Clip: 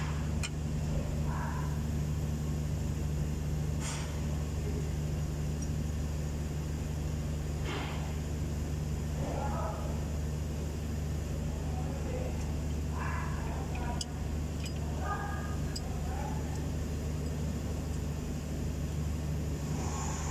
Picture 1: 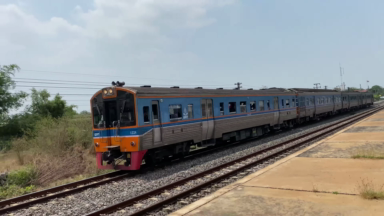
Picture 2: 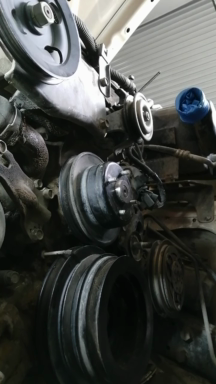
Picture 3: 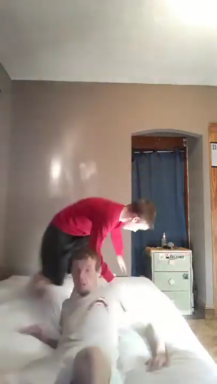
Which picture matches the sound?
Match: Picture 2